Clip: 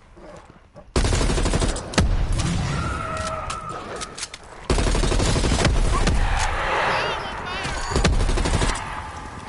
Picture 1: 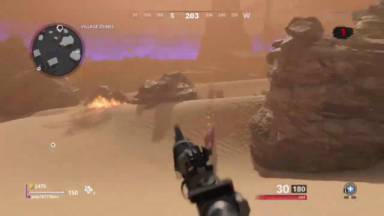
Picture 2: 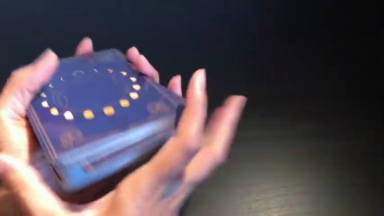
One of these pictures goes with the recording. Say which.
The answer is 1